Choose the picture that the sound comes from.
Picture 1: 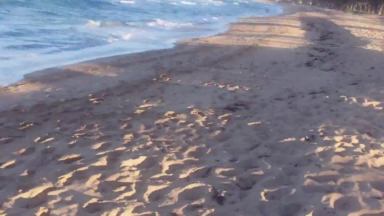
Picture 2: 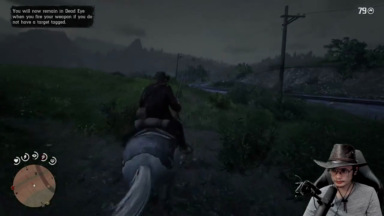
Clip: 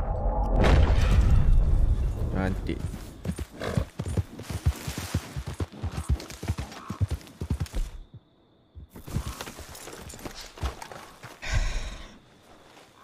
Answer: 2